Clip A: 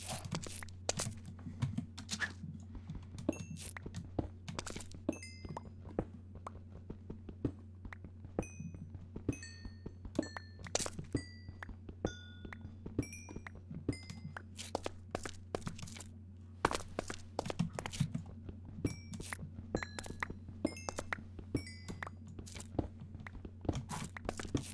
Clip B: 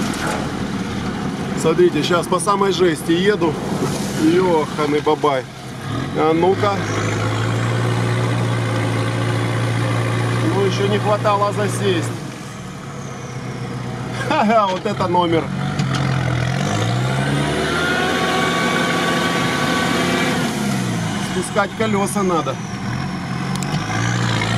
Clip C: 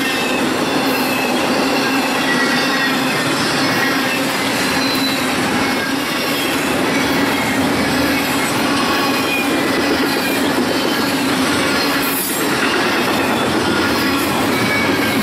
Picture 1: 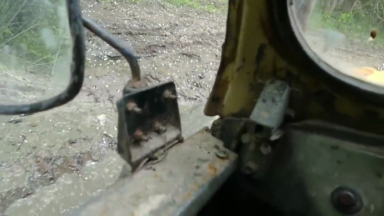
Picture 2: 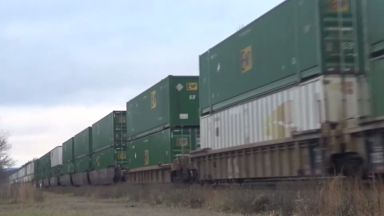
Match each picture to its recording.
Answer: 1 B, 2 C